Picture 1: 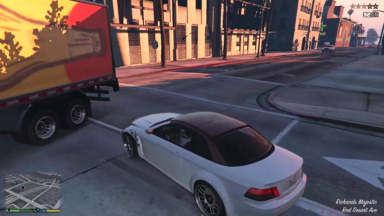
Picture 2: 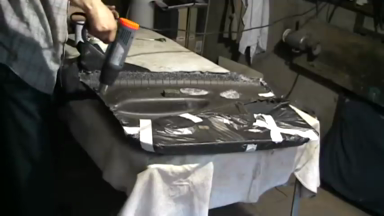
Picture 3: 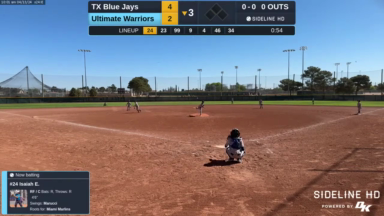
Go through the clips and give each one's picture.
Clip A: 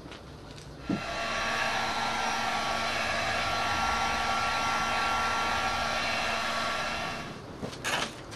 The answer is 2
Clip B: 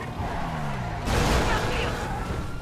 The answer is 1